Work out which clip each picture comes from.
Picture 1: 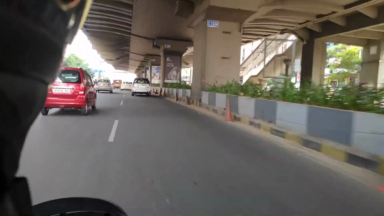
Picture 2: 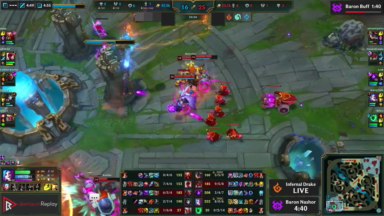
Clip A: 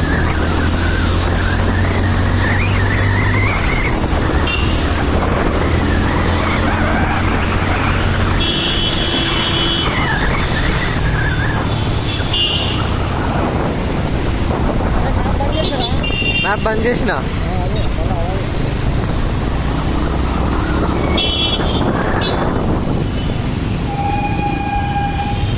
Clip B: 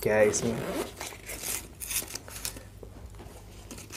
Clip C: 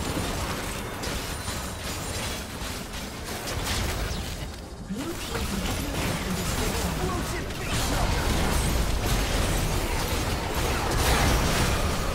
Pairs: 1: A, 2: C